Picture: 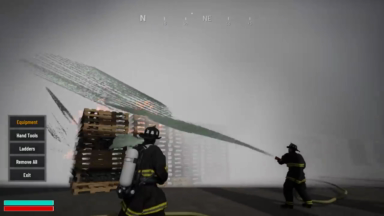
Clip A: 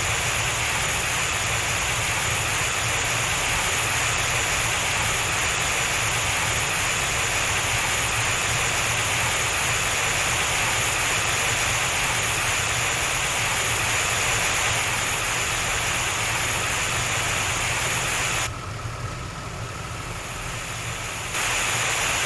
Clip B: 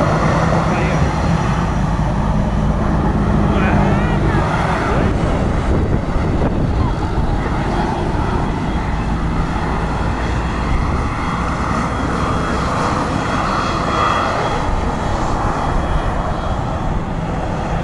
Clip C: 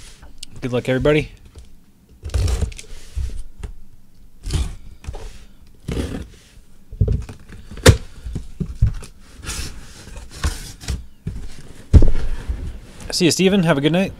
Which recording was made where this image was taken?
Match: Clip A